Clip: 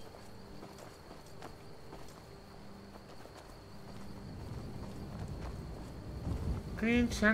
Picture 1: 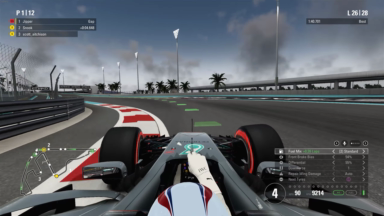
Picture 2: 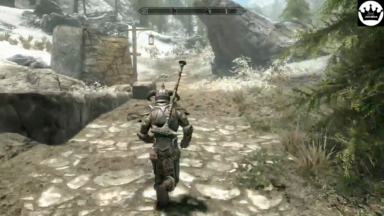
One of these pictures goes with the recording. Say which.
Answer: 2